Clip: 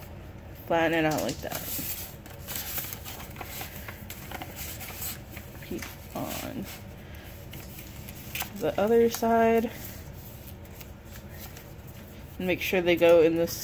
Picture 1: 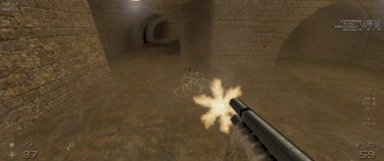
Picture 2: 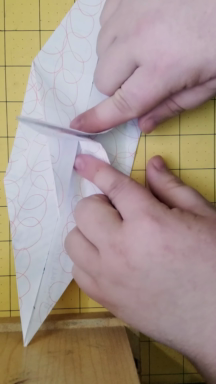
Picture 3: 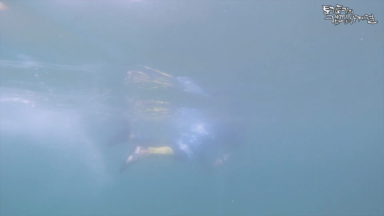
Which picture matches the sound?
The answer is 2